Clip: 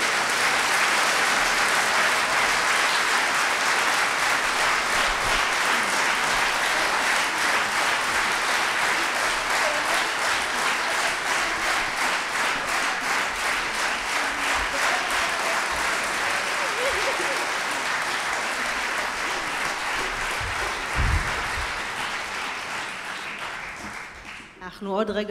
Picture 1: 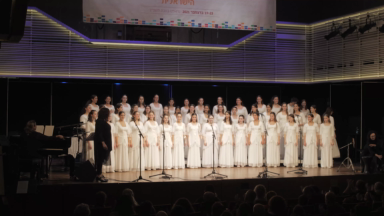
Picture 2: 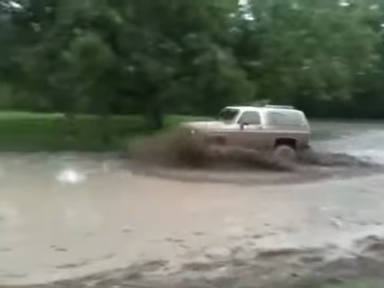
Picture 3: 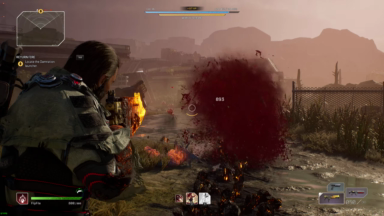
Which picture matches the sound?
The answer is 1